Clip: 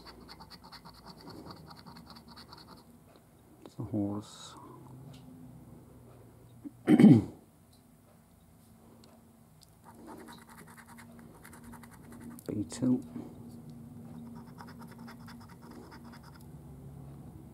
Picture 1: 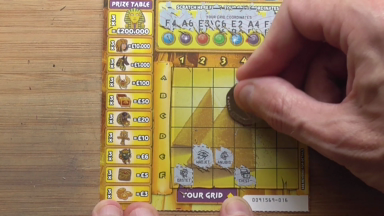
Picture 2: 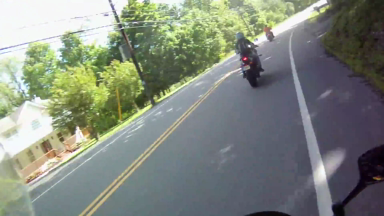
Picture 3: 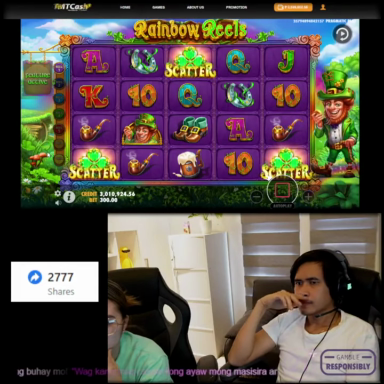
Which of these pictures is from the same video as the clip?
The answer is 1